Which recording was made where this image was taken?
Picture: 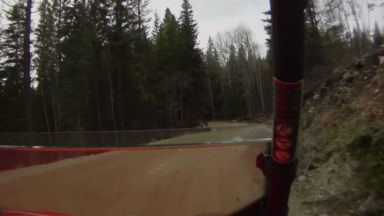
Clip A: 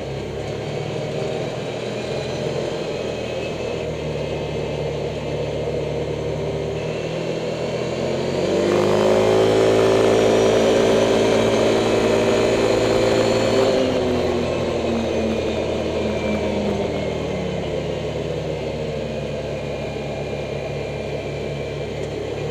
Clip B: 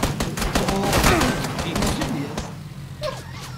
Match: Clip A